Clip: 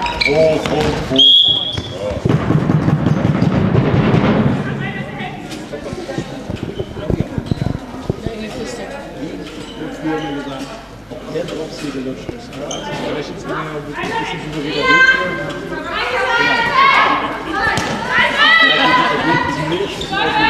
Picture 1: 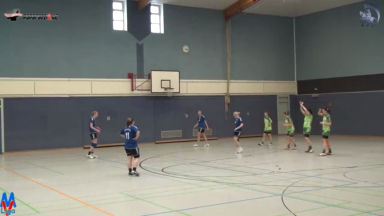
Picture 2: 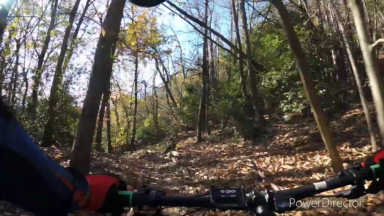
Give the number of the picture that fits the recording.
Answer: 1